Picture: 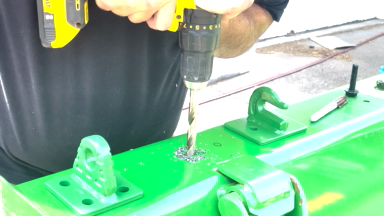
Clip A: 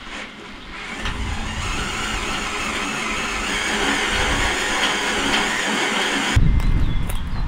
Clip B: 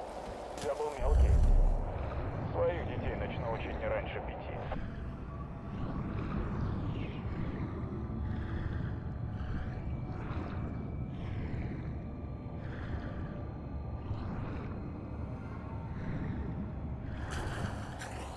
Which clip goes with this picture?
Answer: A